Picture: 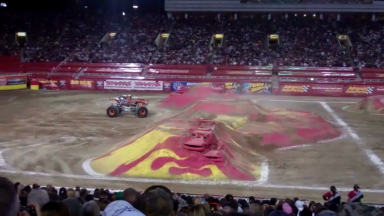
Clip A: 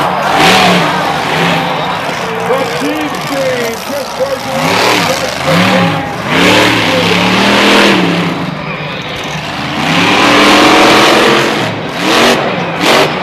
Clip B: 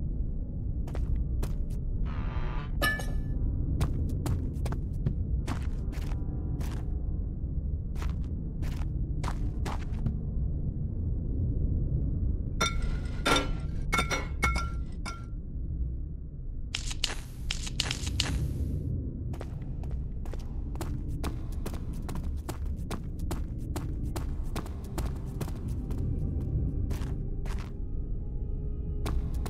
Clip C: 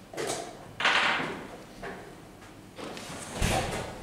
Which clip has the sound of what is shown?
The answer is A